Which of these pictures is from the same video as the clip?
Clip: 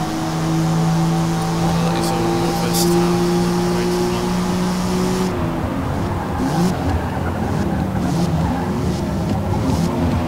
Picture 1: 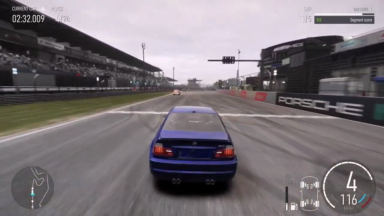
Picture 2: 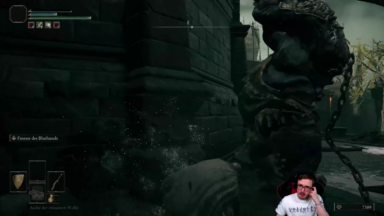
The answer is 1